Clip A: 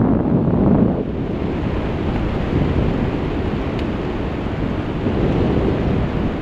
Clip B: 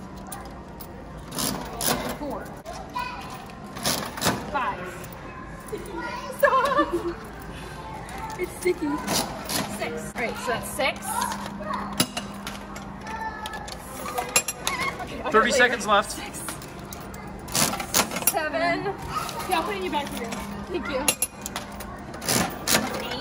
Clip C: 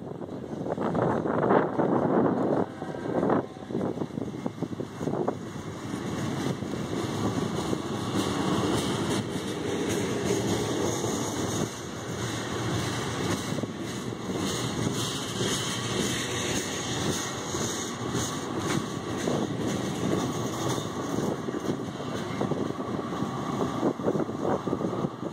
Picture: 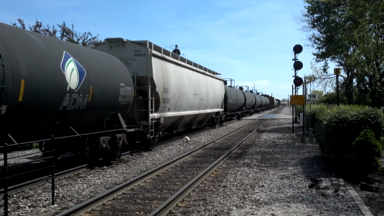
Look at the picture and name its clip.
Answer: C